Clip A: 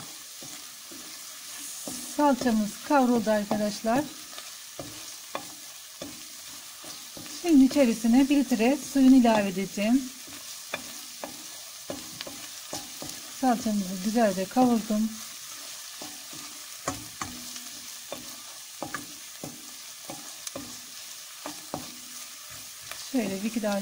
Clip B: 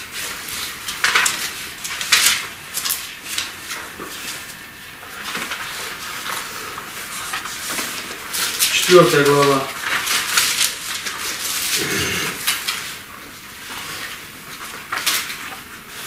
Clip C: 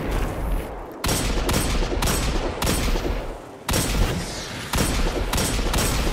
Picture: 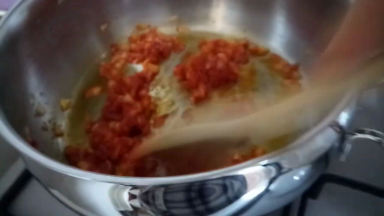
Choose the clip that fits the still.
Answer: A